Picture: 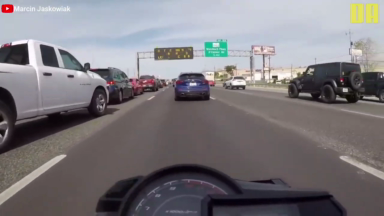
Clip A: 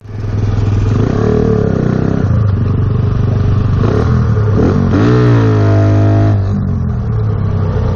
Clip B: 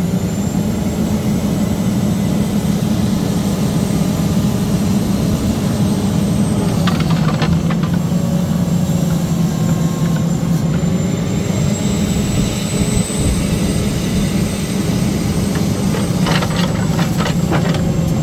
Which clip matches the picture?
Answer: A